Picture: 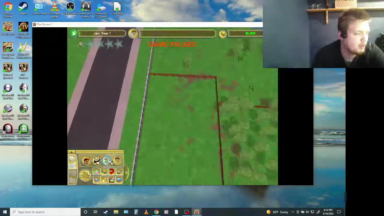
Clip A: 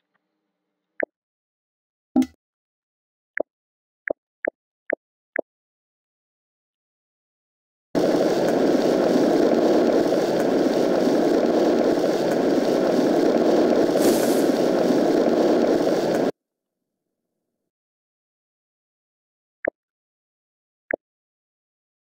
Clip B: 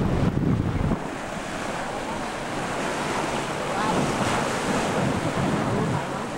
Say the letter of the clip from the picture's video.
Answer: A